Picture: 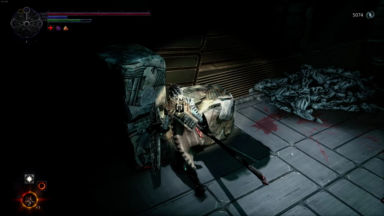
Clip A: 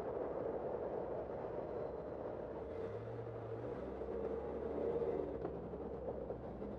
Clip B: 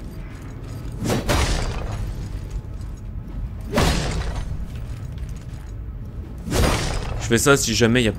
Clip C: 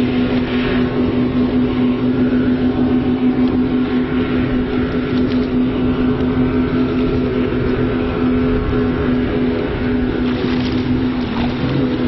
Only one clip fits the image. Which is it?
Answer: B